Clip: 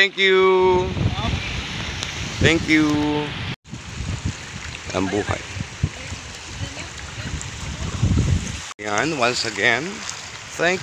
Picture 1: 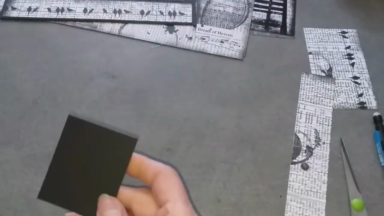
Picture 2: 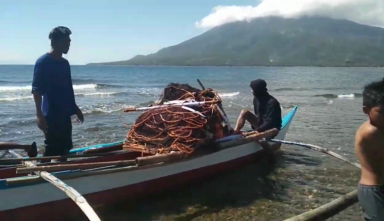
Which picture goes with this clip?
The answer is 2